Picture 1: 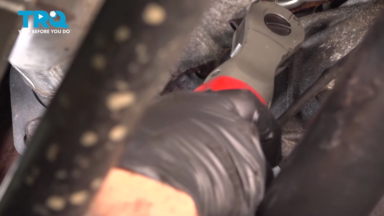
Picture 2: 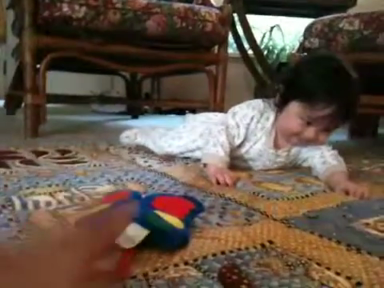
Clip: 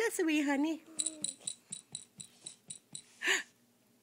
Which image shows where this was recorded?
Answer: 2